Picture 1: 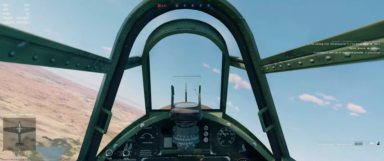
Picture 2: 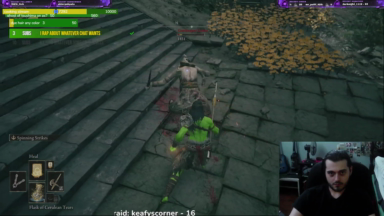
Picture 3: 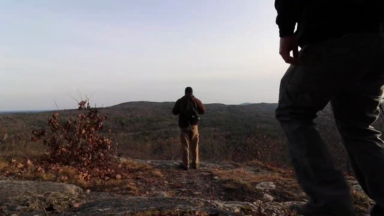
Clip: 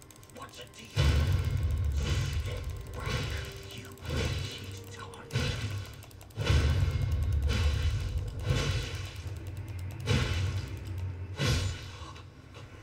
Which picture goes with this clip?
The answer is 2